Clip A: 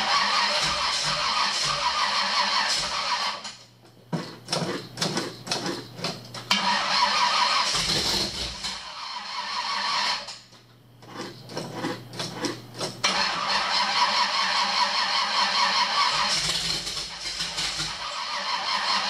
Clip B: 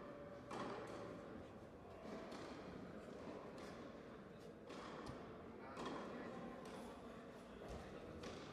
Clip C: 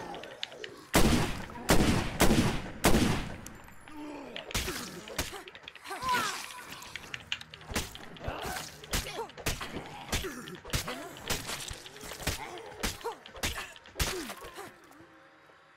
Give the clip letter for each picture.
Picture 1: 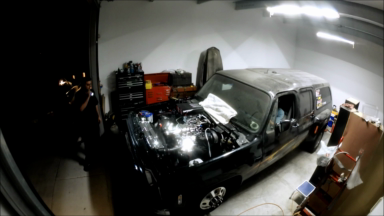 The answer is A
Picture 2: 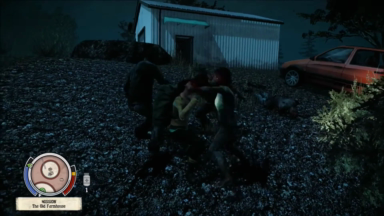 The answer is C